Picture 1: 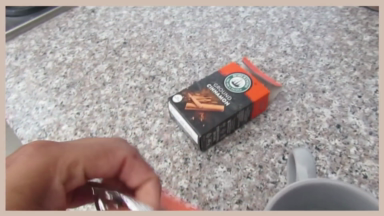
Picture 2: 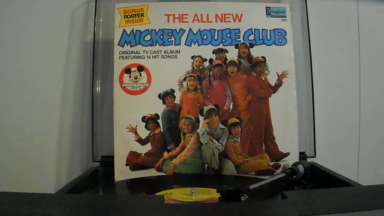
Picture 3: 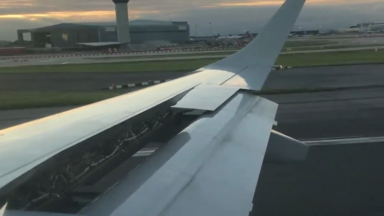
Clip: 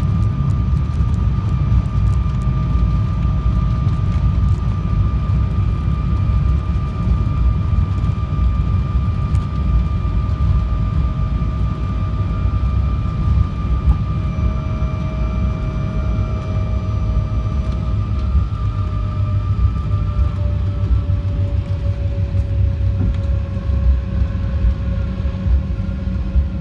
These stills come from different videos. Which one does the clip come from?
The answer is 3